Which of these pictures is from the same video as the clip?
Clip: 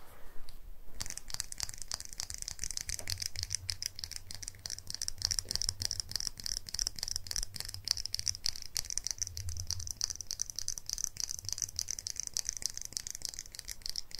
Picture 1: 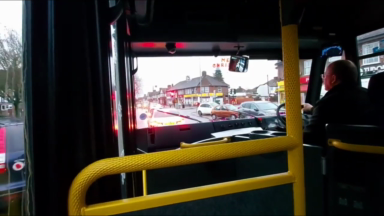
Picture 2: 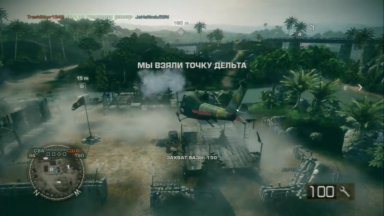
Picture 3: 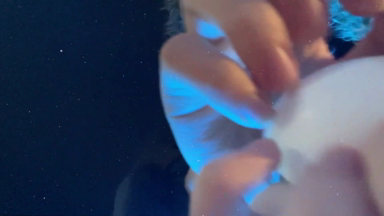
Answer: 3